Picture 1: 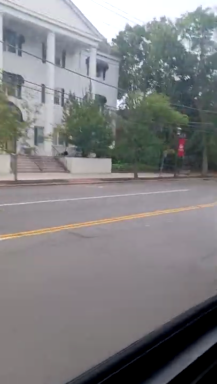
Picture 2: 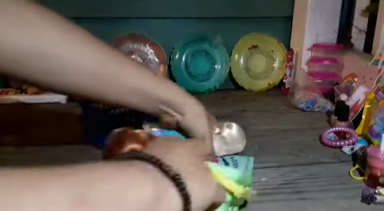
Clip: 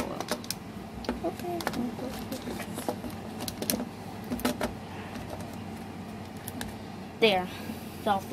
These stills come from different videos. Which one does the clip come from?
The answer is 2